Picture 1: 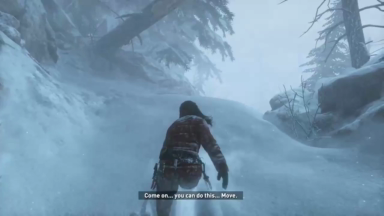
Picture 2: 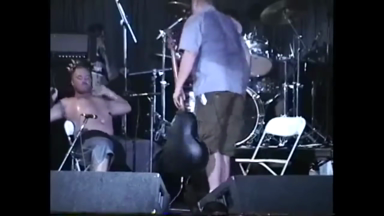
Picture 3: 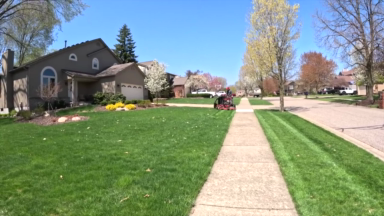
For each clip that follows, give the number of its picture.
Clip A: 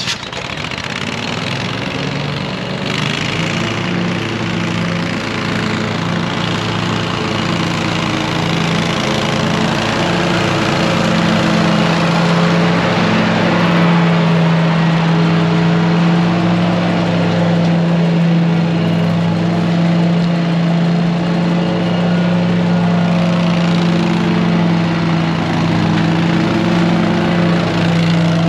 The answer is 3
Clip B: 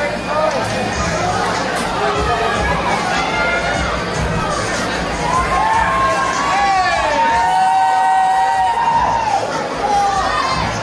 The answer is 2